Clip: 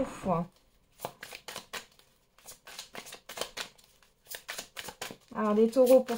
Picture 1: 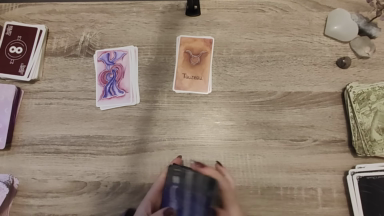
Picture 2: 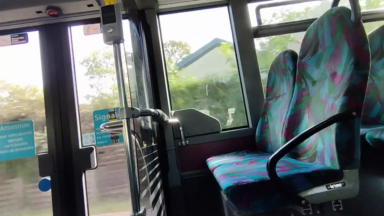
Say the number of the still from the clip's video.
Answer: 1